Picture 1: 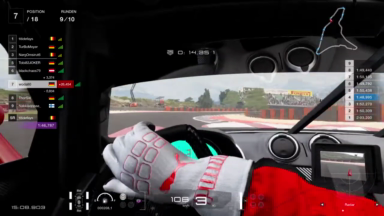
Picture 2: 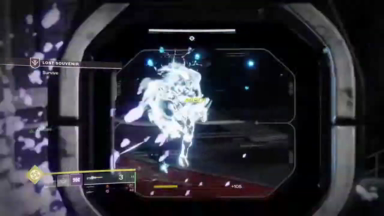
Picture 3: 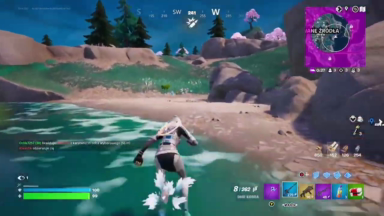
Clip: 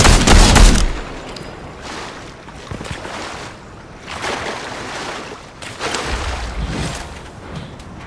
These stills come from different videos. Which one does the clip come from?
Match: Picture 3